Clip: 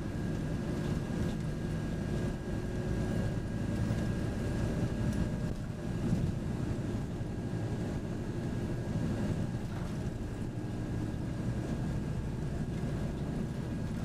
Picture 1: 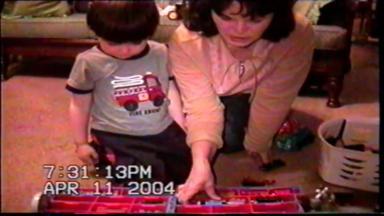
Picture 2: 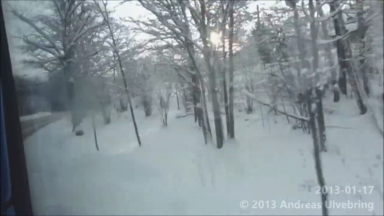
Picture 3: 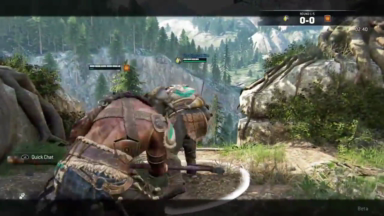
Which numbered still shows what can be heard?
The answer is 2